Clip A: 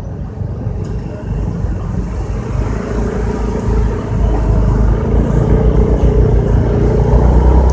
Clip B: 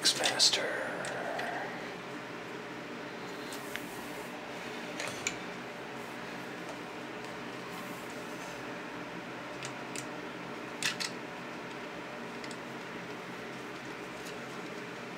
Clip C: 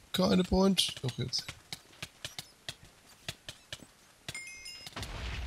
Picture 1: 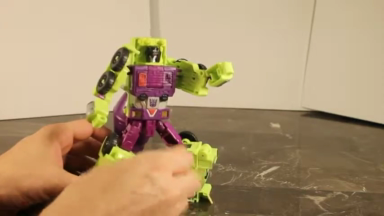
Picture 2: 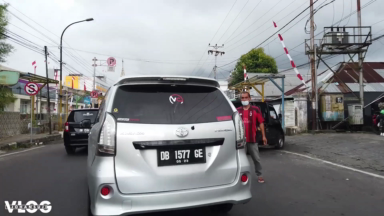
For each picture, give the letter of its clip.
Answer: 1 B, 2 A